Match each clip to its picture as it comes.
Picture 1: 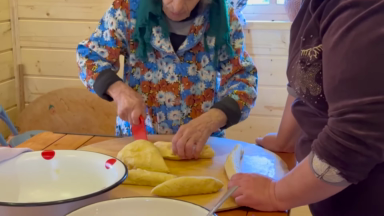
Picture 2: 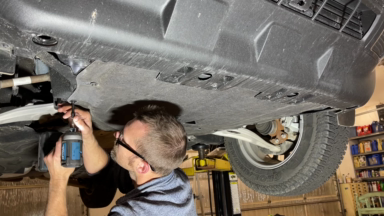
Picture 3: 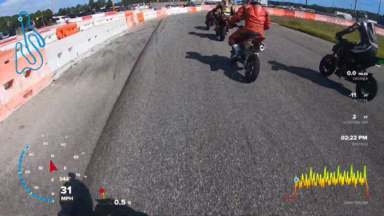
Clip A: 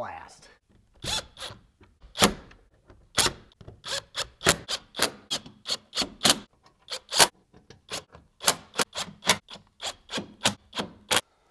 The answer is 2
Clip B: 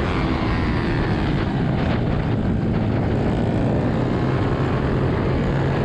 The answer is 3